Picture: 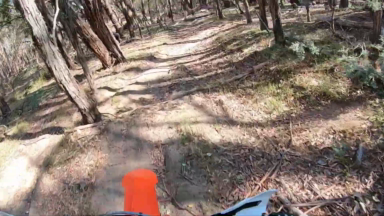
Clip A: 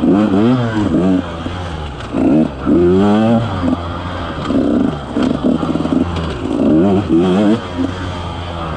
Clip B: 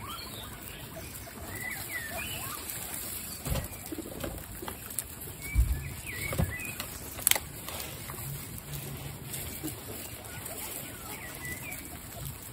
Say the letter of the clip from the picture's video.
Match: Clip A